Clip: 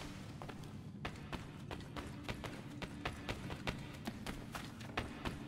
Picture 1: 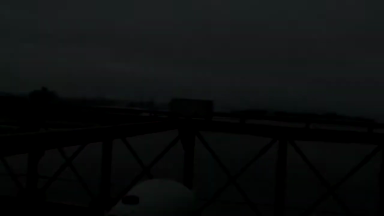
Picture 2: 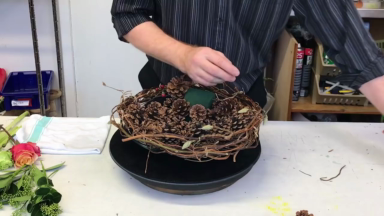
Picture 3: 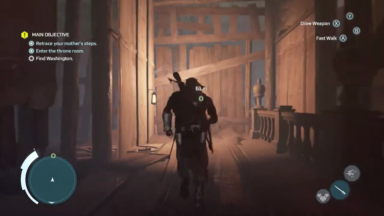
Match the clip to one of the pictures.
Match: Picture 3